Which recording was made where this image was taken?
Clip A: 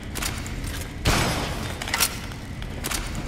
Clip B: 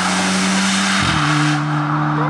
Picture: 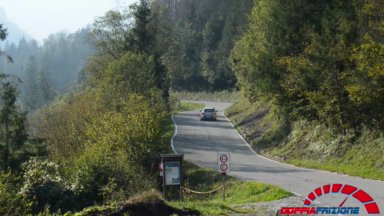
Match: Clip B